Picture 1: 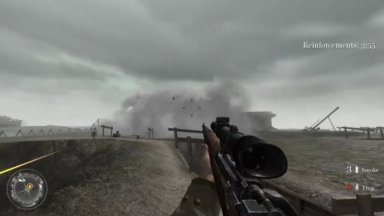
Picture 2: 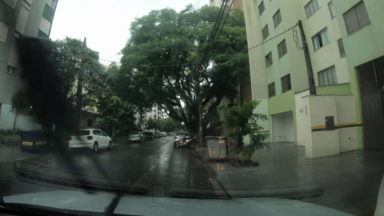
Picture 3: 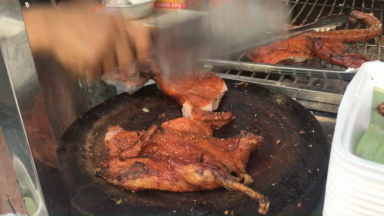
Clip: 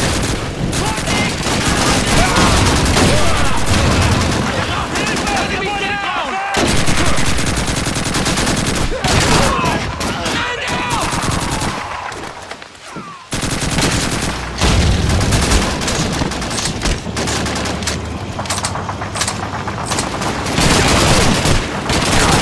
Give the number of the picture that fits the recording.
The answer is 1